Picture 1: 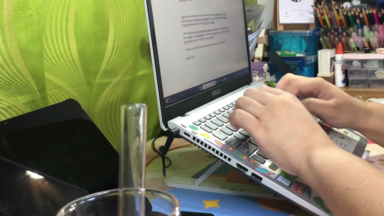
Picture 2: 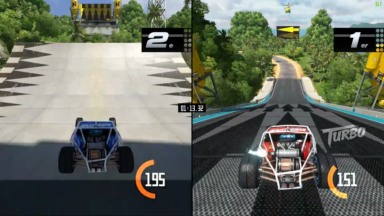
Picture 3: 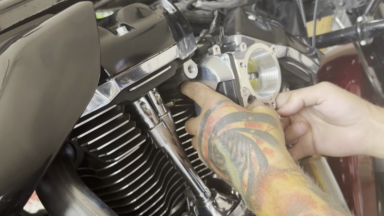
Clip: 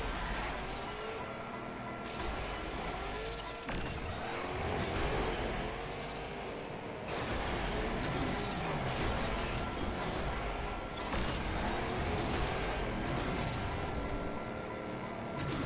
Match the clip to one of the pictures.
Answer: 2